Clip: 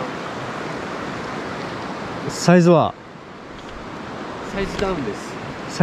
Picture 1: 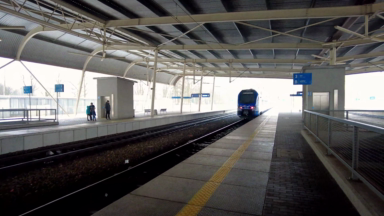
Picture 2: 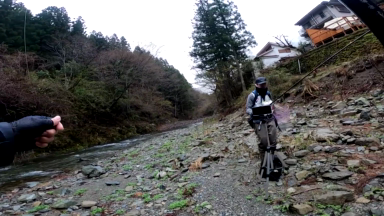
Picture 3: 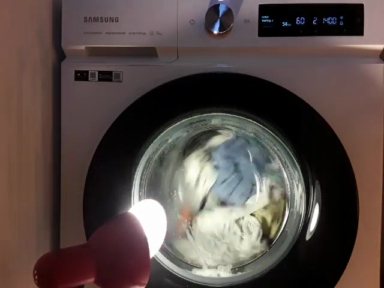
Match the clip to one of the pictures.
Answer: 2